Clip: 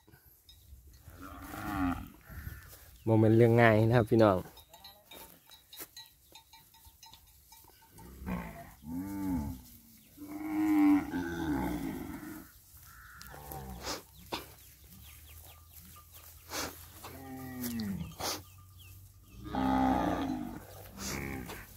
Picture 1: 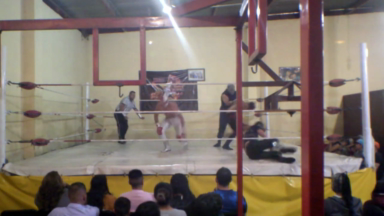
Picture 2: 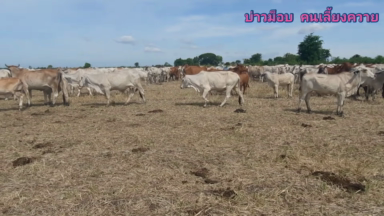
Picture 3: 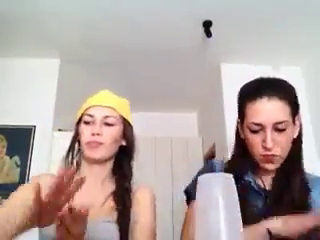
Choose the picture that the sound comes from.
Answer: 2